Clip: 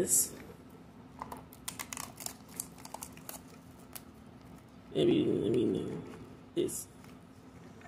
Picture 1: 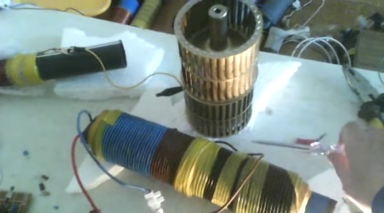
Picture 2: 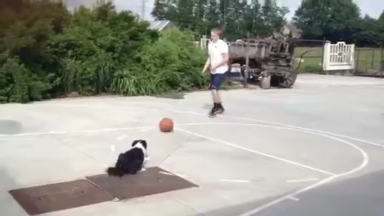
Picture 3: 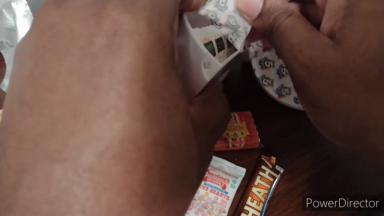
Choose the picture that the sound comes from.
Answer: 3